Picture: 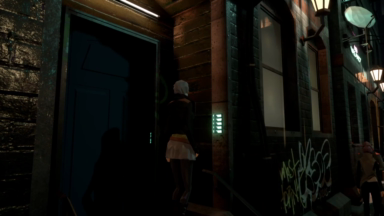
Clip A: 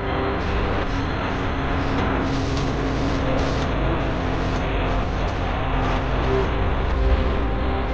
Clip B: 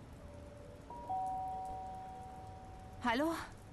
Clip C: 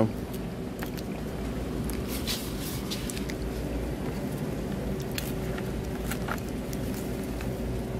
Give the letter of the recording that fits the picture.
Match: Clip B